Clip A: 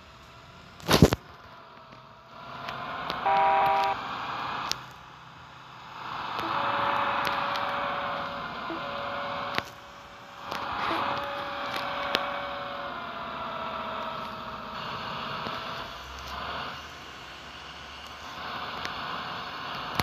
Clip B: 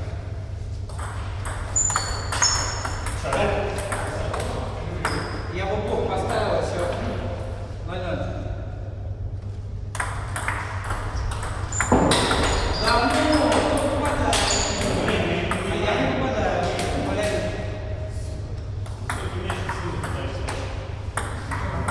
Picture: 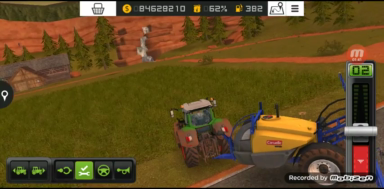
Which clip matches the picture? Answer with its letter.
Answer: A